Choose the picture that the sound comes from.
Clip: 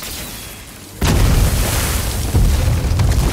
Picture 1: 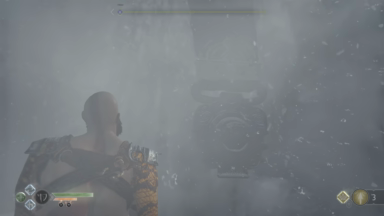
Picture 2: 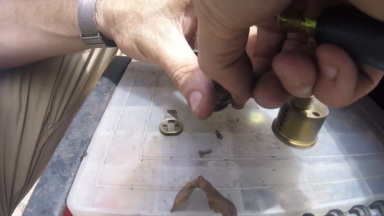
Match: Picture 1